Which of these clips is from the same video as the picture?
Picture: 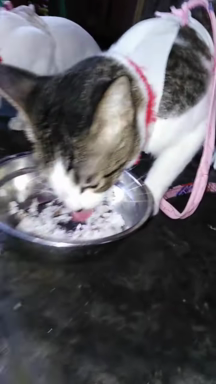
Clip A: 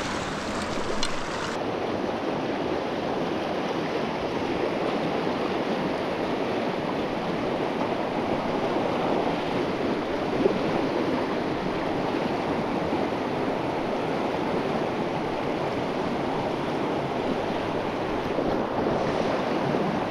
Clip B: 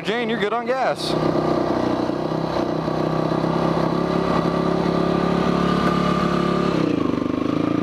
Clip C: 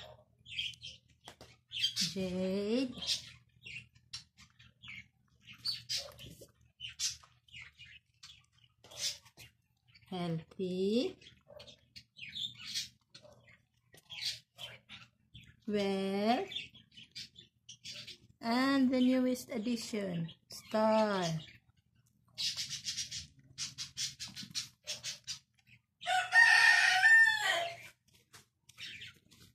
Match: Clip C